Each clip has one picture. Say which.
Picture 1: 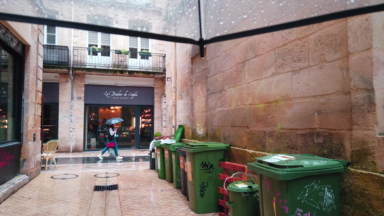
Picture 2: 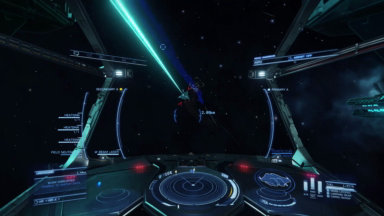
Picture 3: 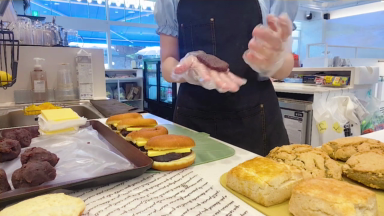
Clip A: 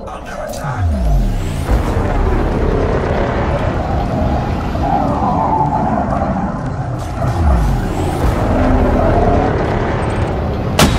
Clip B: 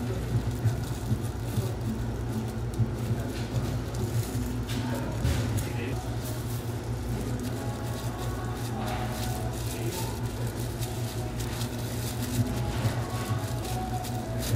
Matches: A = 2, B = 3